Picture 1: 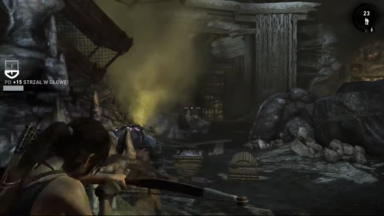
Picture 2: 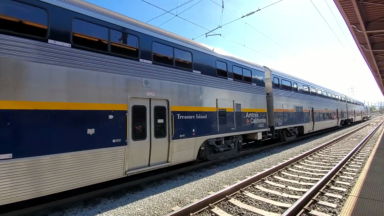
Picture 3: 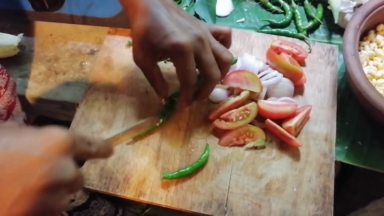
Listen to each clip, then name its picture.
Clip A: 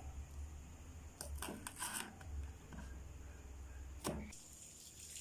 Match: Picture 3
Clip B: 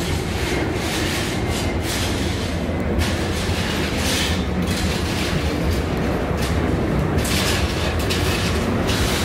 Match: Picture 2